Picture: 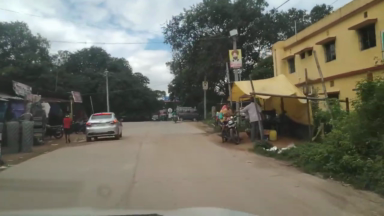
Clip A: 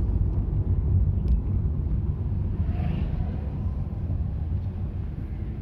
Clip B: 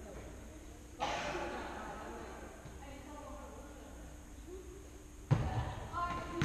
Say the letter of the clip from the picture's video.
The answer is A